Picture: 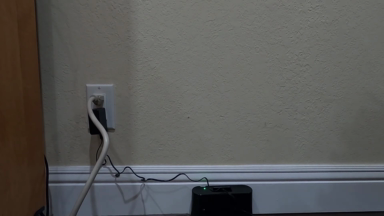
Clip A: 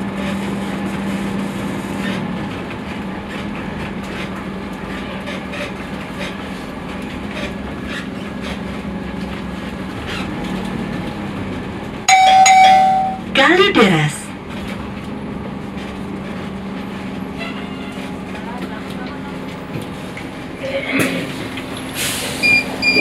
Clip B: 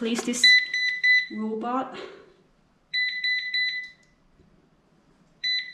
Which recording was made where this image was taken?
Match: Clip B